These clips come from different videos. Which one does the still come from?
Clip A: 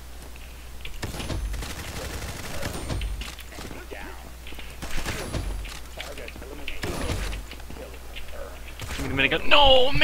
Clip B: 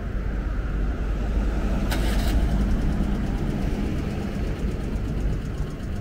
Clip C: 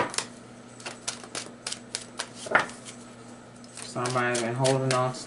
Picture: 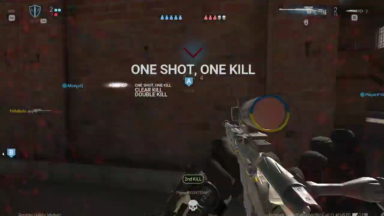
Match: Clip A